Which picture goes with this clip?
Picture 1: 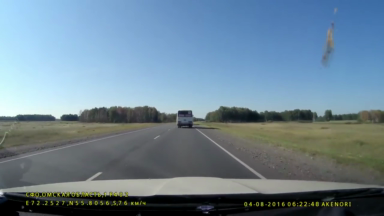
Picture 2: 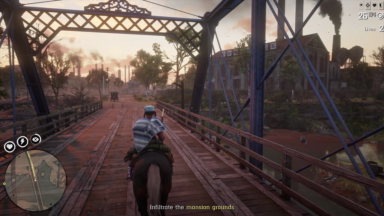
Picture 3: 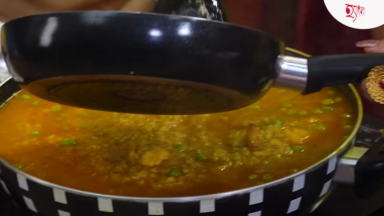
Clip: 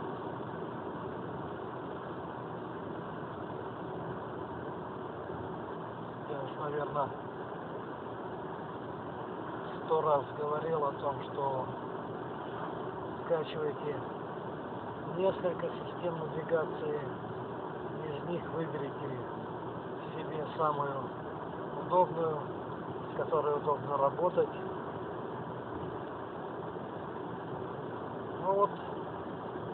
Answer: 1